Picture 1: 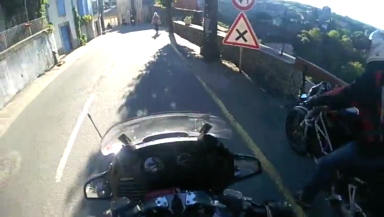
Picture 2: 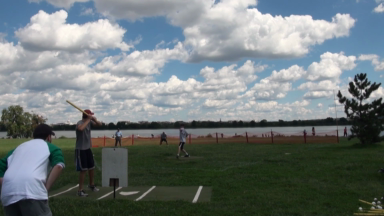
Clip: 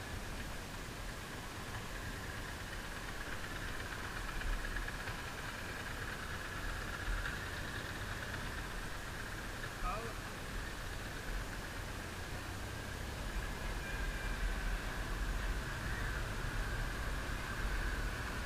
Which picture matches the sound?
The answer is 1